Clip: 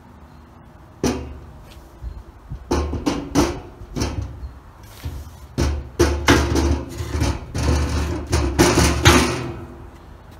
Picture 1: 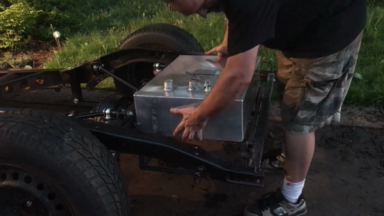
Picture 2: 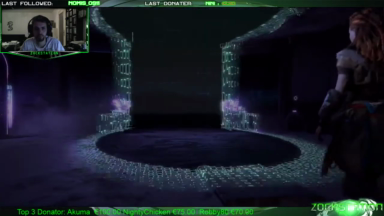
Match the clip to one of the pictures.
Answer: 1